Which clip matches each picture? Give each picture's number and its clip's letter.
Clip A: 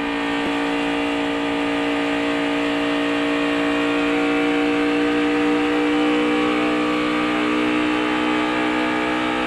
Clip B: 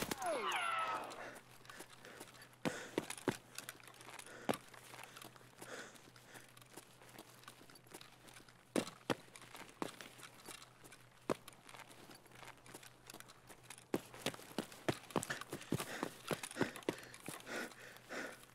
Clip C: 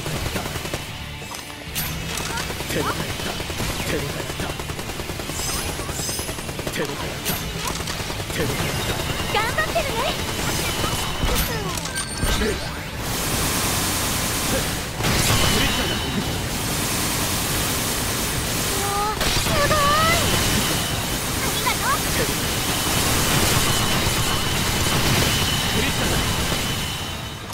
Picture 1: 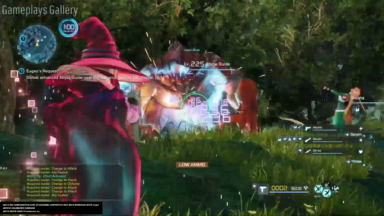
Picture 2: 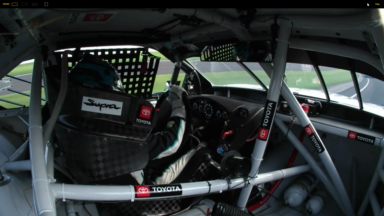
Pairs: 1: C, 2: A